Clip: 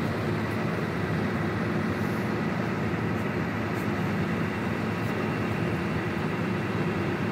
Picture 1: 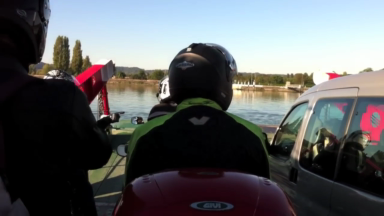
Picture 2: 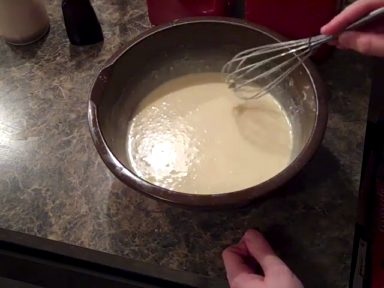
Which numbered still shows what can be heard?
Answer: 1